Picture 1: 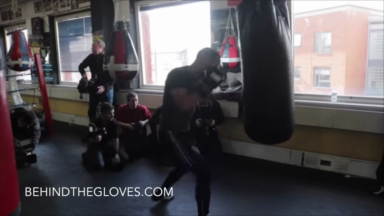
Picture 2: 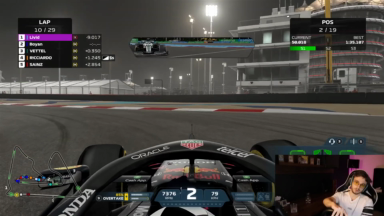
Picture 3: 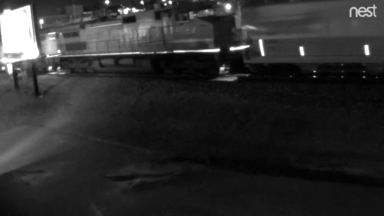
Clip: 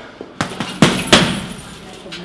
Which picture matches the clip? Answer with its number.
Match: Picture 1